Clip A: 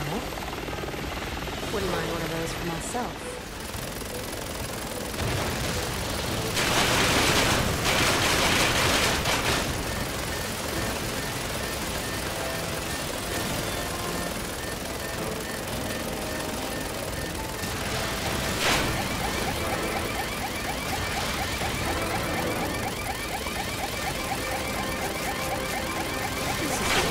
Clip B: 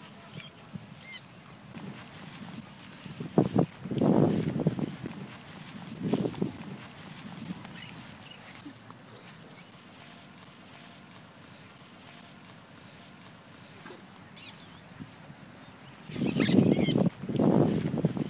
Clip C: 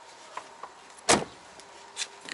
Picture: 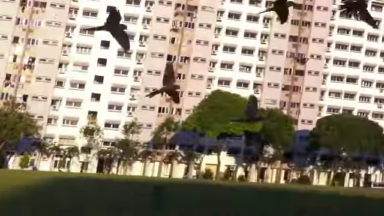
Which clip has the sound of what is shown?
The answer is B